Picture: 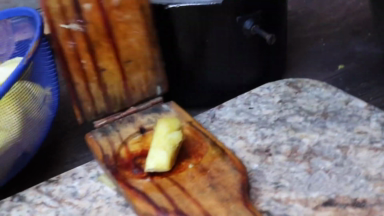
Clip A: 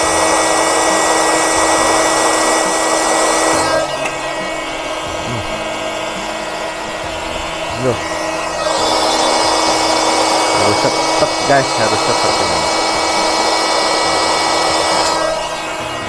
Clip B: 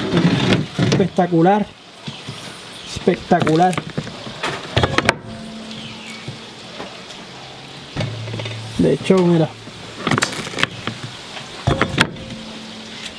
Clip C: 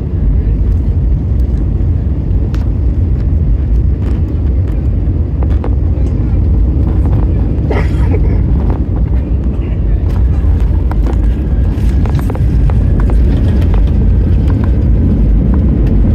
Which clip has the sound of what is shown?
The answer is B